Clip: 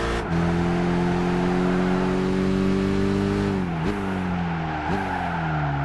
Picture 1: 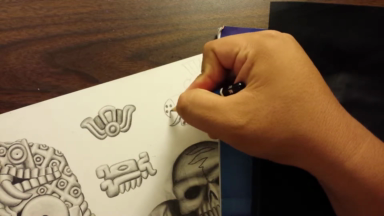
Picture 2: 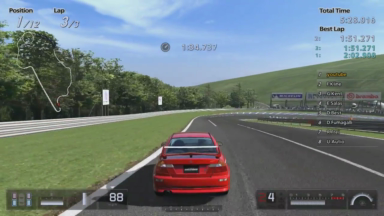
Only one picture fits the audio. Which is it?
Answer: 2